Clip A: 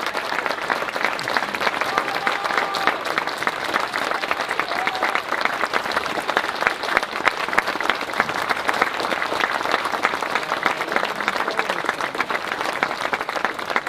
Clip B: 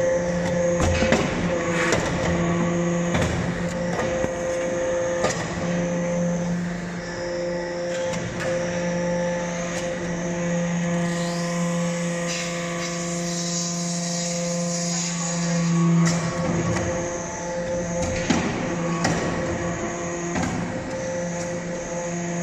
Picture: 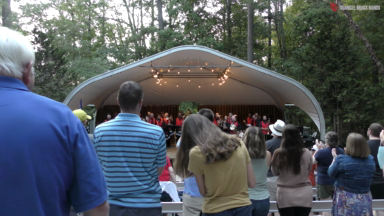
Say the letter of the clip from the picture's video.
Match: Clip A